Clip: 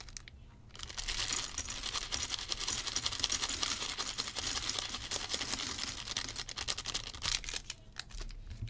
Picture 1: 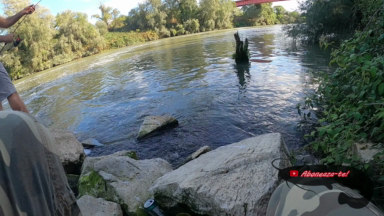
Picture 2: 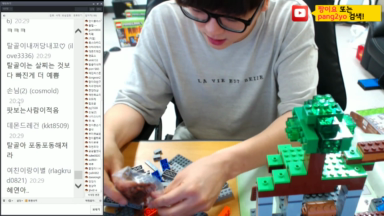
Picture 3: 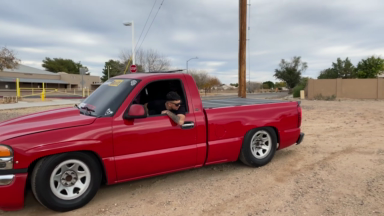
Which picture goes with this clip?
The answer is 2